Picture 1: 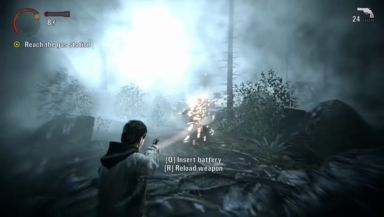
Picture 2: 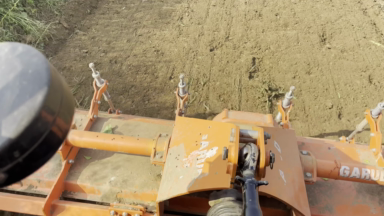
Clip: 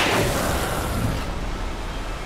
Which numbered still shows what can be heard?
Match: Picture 1